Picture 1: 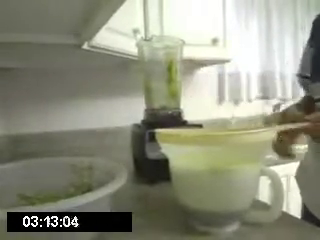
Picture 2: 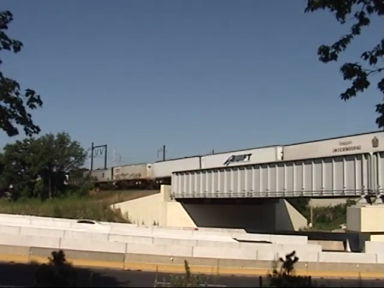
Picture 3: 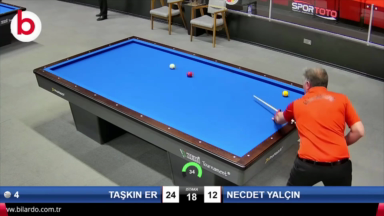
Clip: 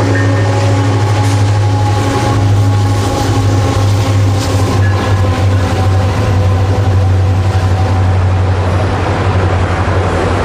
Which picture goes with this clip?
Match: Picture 2